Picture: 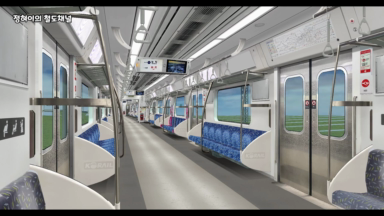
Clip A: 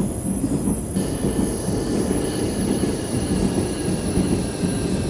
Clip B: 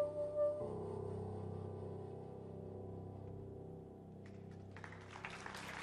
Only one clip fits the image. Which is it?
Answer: A